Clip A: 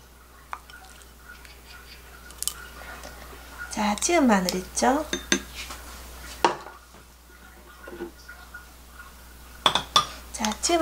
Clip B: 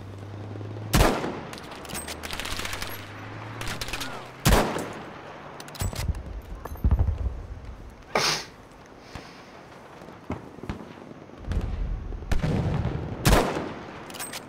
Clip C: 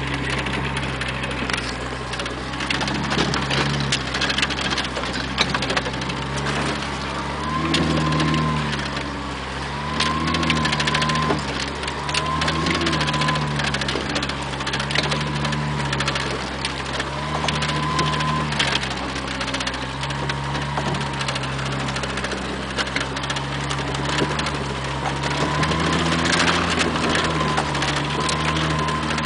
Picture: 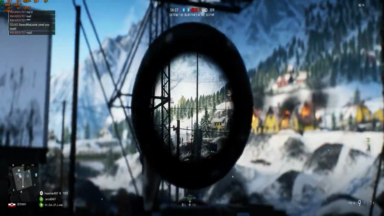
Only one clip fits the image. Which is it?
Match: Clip B